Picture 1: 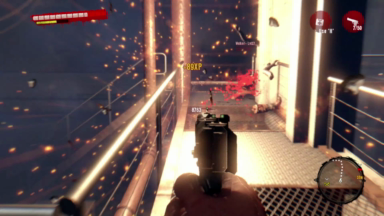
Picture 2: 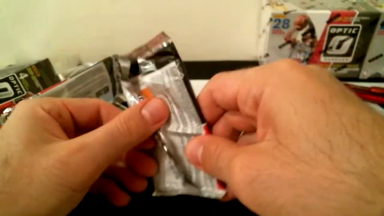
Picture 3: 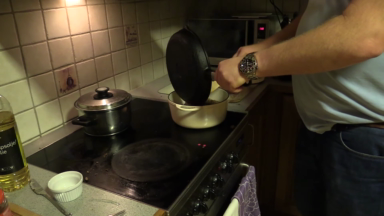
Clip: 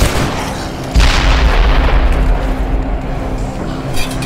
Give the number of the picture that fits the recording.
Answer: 1